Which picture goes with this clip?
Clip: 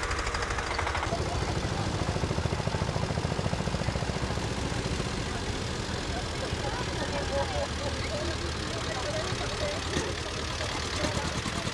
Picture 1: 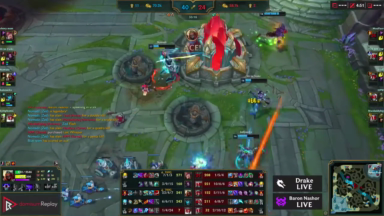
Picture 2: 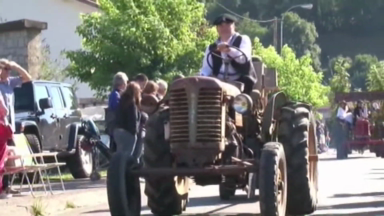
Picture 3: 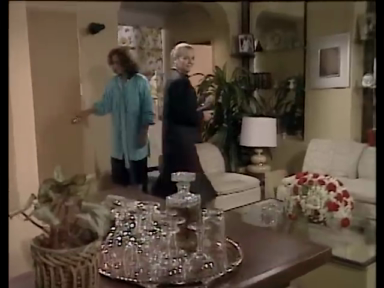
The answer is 2